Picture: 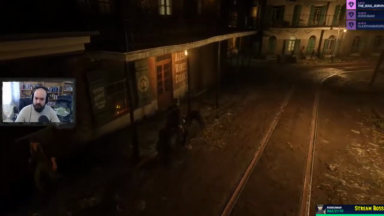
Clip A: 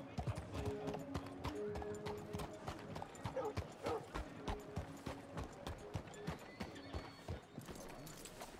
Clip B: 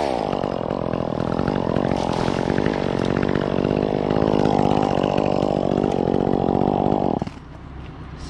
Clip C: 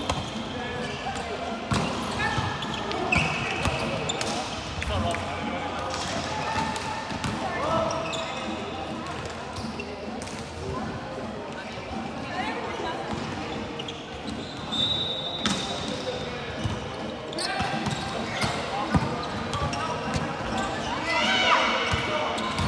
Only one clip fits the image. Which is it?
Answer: A